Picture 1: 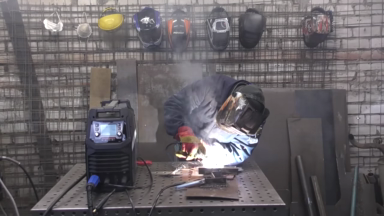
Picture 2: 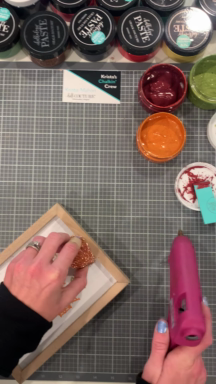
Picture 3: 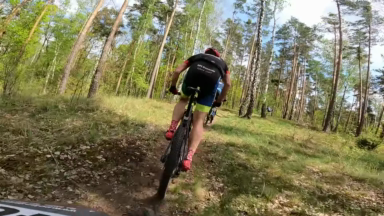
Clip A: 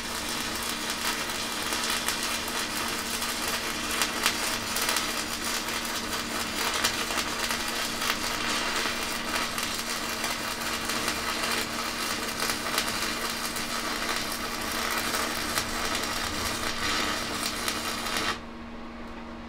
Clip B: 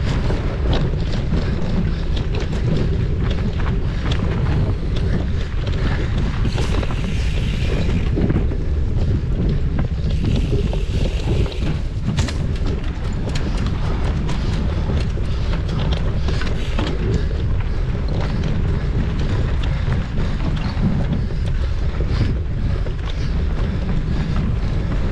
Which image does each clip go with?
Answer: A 1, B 3